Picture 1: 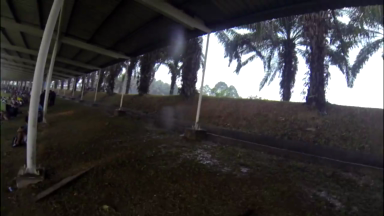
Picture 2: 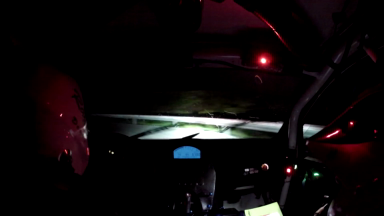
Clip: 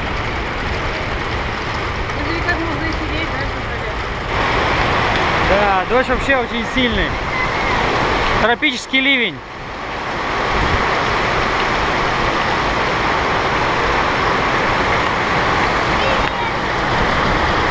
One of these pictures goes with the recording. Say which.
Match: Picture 1